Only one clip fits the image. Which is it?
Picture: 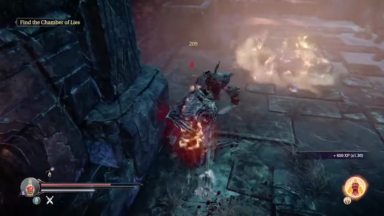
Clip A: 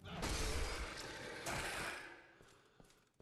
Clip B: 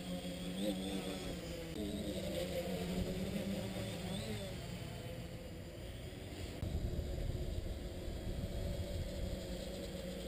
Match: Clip A